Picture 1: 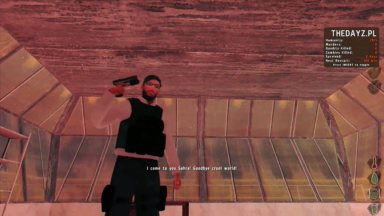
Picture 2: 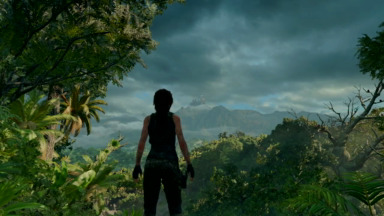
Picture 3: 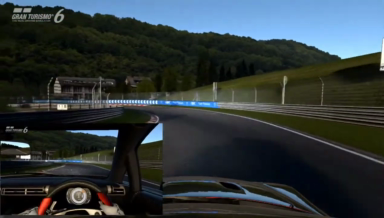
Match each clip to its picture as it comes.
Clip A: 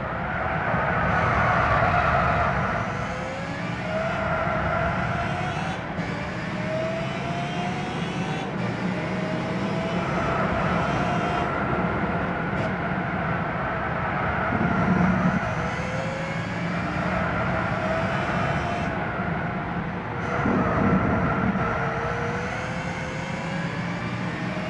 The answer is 3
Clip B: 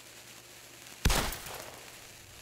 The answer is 1